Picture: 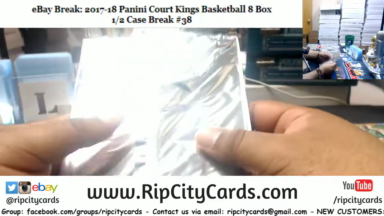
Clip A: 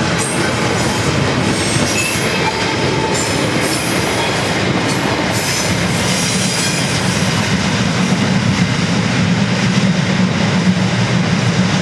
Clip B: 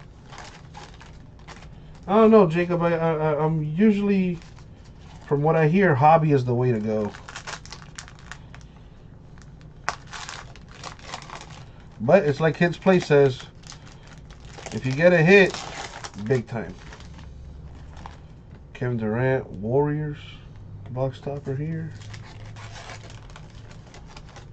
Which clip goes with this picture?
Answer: B